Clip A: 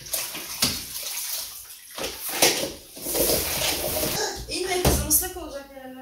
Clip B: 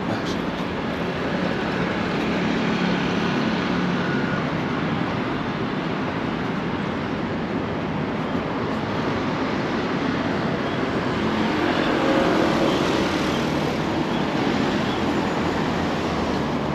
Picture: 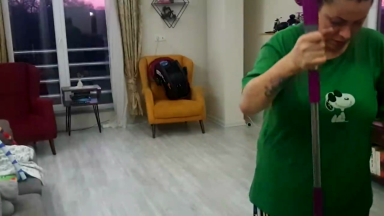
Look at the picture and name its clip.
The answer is A